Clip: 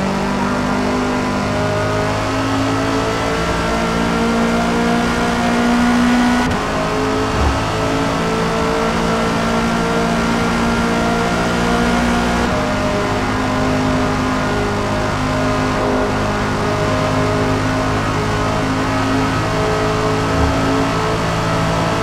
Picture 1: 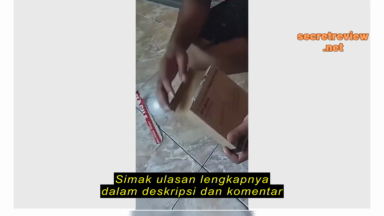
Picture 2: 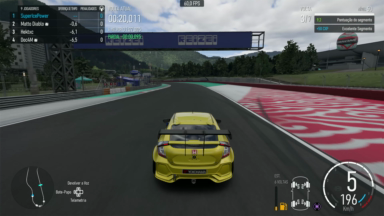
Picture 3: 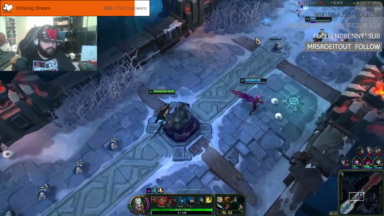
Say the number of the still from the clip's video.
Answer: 2